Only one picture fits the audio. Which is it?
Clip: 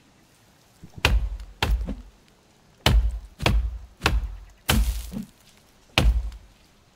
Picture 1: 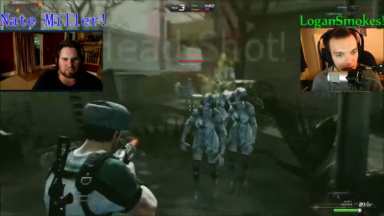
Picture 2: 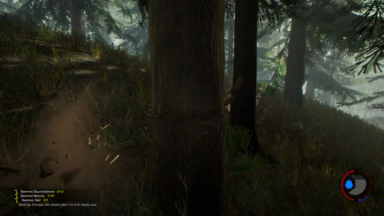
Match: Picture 2